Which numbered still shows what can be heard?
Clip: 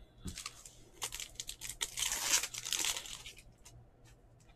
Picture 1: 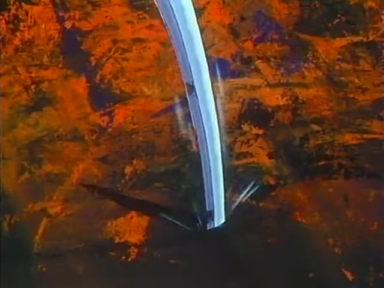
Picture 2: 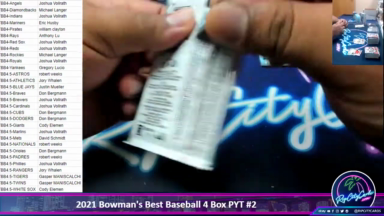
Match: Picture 2